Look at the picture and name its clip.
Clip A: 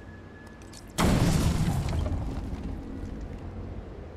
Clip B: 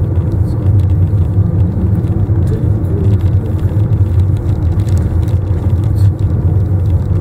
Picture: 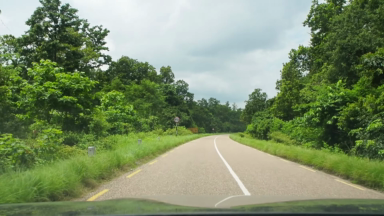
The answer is B